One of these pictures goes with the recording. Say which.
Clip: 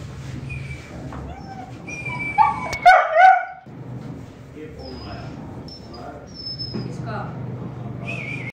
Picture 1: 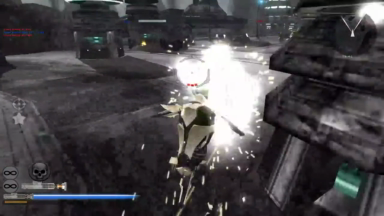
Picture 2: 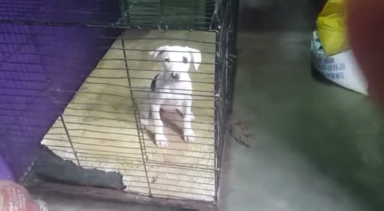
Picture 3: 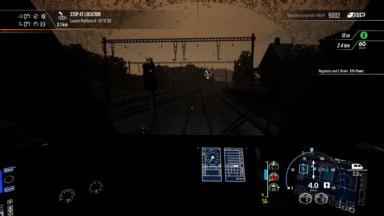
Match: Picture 2